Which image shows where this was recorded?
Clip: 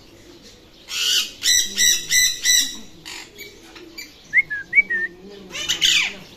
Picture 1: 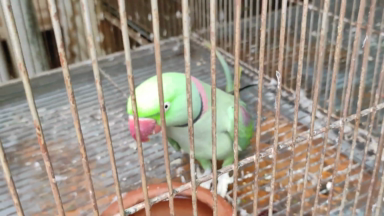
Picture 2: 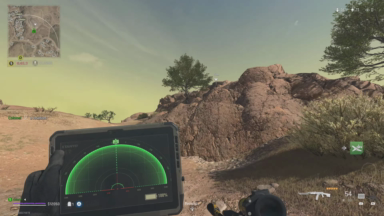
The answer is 1